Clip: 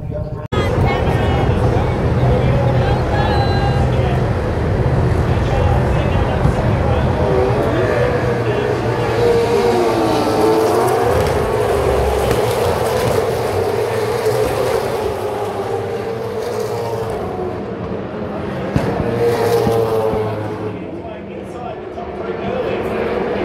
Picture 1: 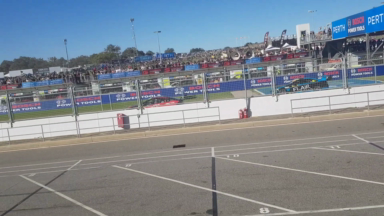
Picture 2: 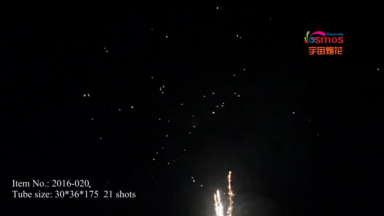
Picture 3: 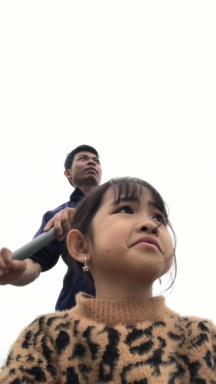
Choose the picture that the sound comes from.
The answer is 1